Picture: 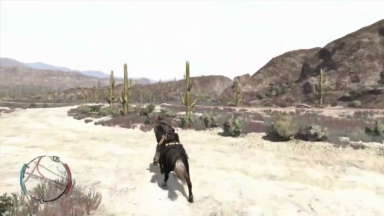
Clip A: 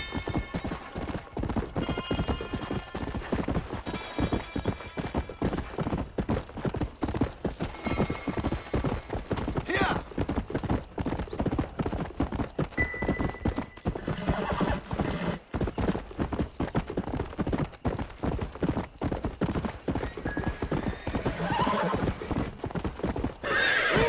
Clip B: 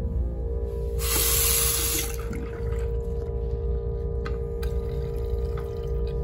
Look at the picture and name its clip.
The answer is A